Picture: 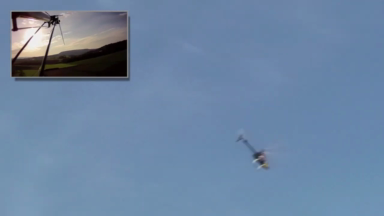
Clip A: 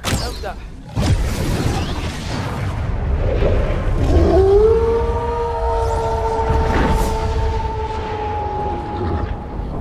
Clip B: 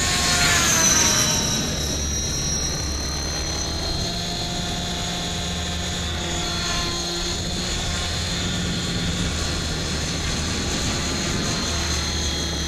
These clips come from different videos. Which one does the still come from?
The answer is B